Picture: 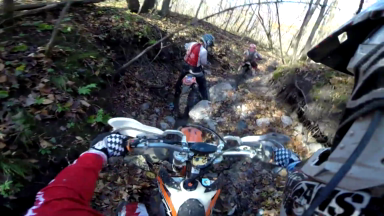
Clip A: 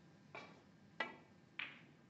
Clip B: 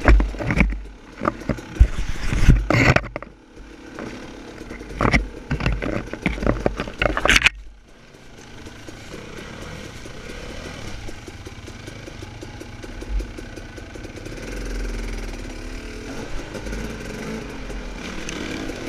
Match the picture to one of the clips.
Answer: B